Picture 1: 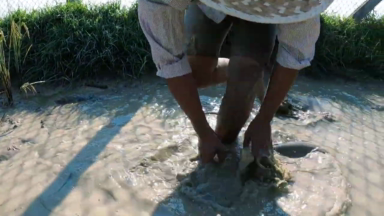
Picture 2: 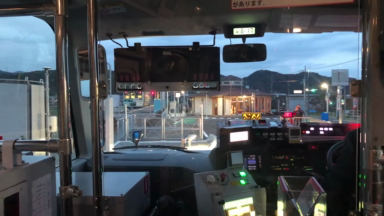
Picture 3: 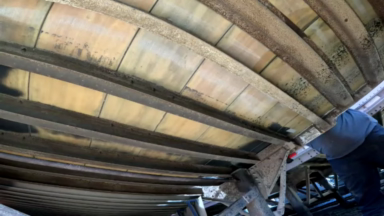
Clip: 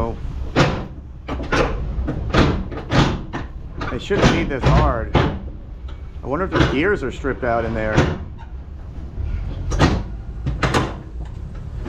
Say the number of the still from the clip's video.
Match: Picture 3